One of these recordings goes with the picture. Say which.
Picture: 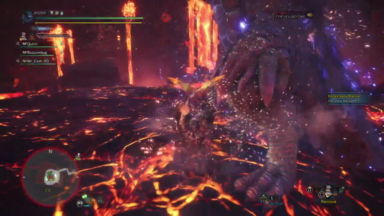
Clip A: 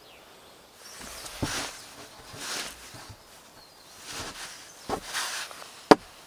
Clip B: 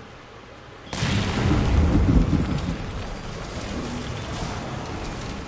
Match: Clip B